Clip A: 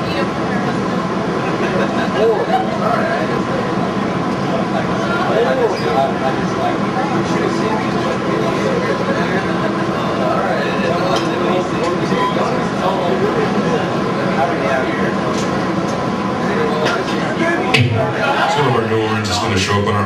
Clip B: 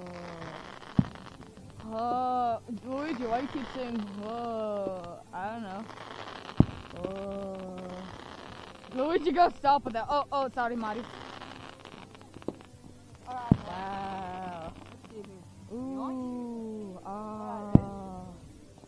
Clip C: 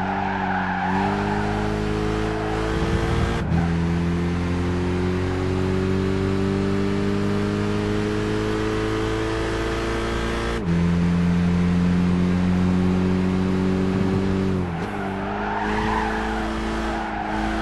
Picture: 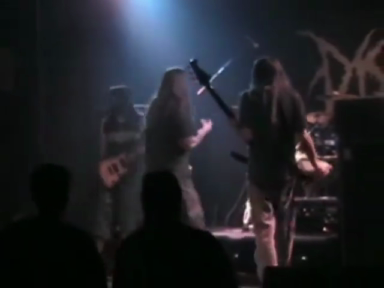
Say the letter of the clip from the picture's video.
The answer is A